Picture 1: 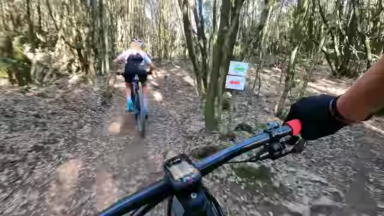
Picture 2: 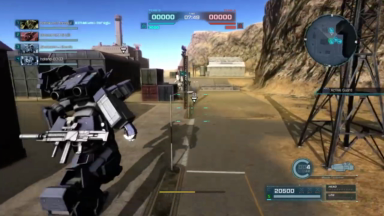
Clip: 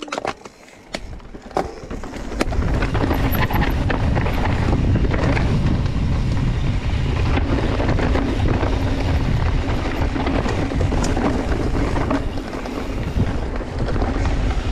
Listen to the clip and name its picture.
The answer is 1